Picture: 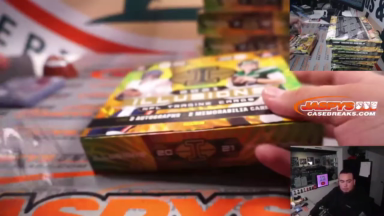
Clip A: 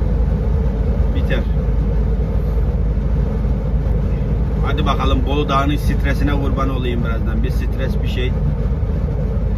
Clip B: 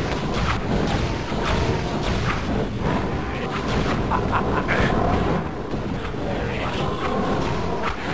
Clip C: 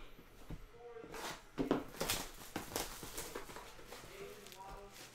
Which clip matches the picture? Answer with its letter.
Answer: C